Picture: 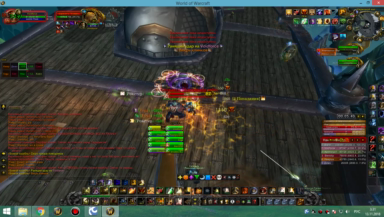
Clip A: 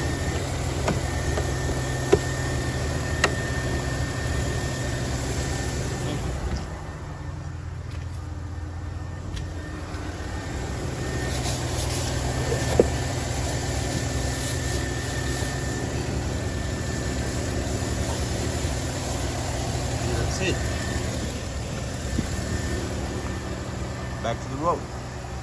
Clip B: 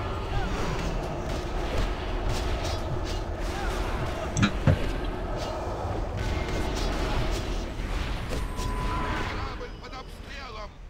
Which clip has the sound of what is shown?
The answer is B